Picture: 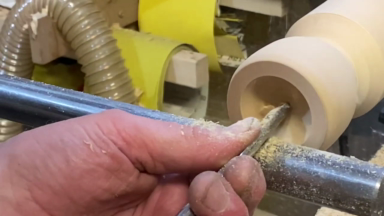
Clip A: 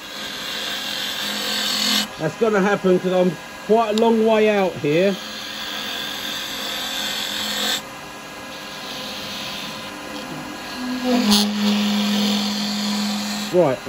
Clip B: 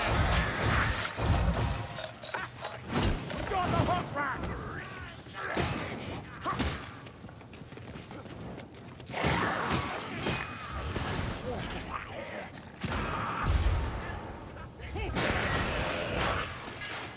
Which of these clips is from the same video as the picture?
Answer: A